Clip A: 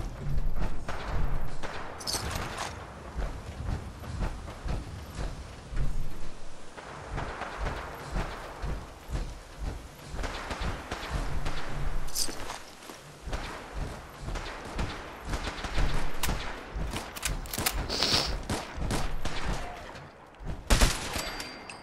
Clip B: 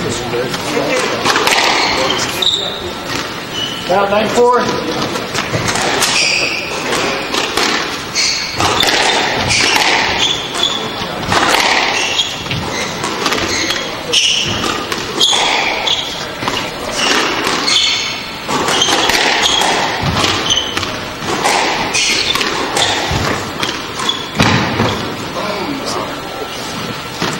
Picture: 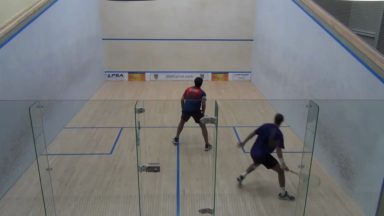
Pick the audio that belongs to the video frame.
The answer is B